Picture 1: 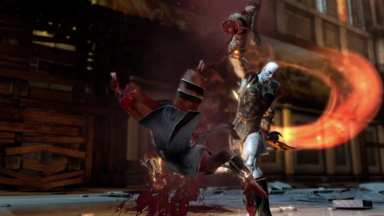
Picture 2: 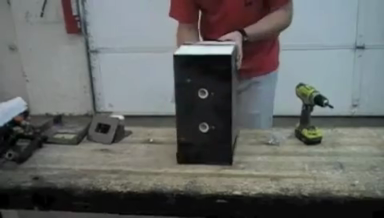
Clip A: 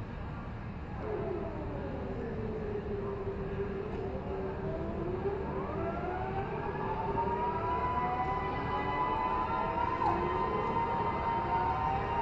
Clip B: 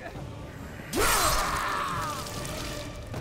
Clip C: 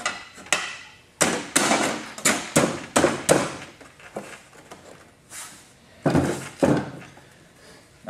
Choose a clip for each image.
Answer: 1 B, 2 C